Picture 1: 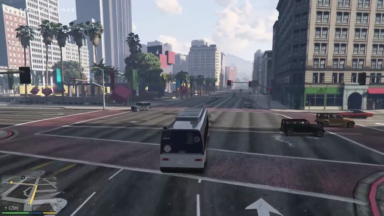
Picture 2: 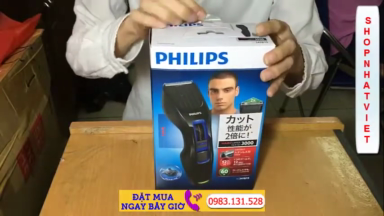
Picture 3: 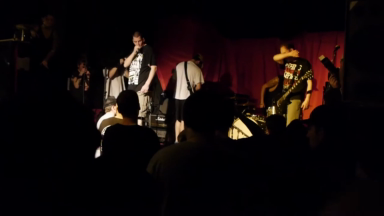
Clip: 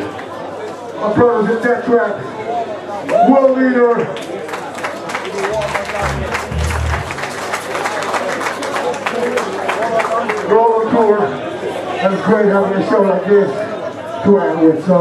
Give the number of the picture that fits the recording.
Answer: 3